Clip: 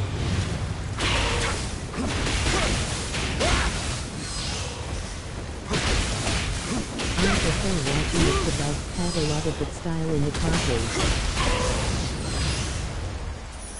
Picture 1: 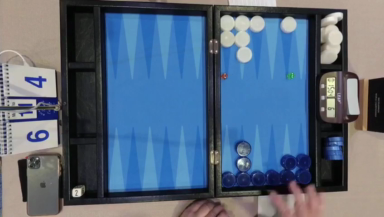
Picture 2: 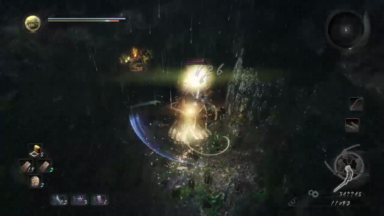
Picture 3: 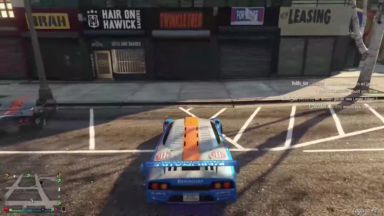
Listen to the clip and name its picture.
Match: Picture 2